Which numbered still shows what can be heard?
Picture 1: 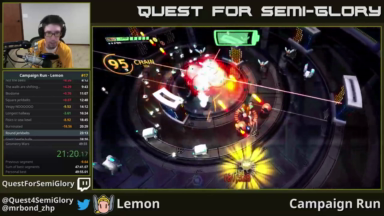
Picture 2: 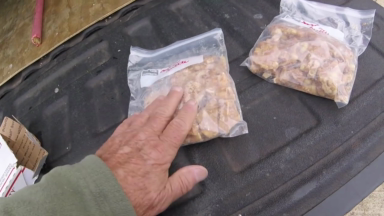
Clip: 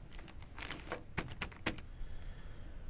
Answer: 2